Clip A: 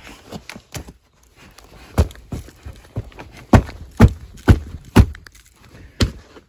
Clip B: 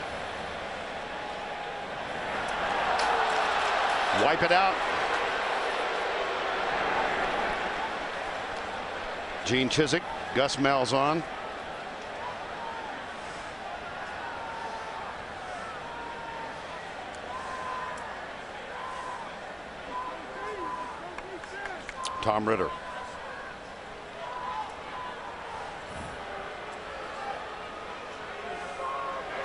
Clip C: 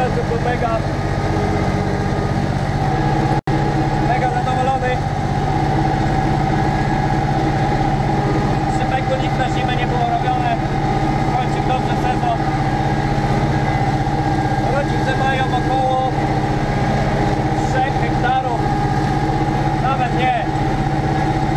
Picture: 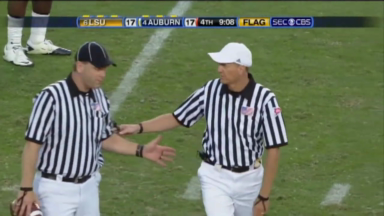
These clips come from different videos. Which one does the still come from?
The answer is B